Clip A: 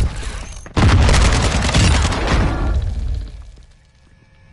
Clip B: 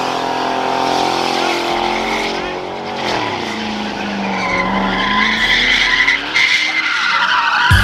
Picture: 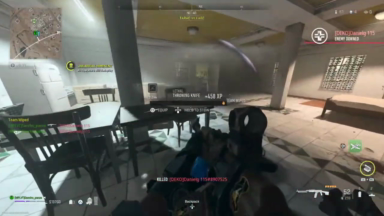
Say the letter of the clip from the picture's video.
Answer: A